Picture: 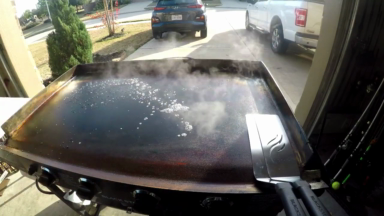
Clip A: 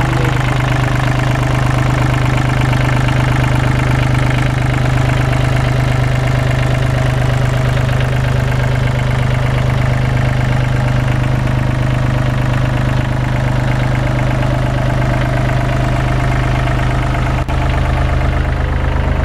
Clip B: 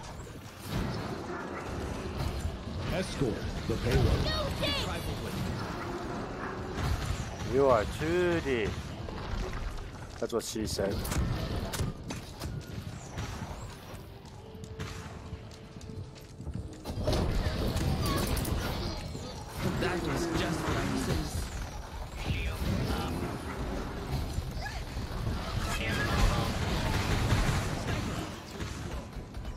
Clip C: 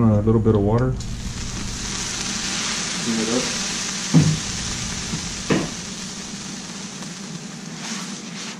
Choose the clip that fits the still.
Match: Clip C